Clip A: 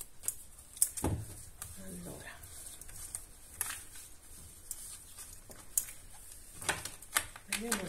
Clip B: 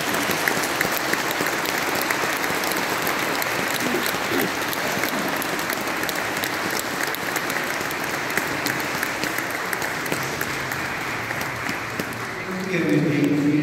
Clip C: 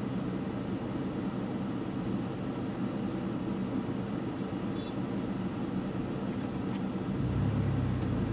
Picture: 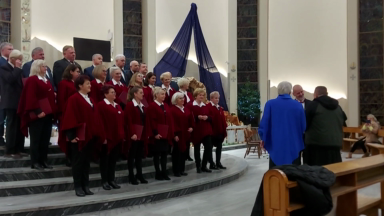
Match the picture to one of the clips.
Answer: B